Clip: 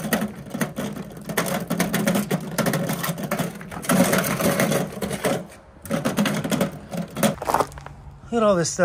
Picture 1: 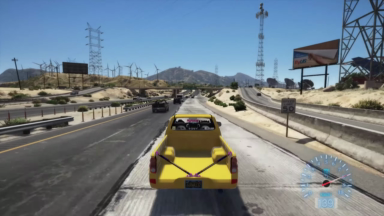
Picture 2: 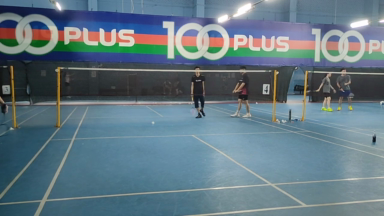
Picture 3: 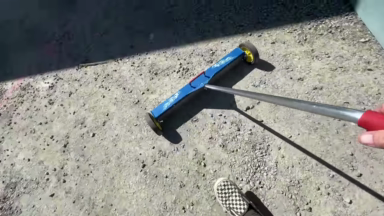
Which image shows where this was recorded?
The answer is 3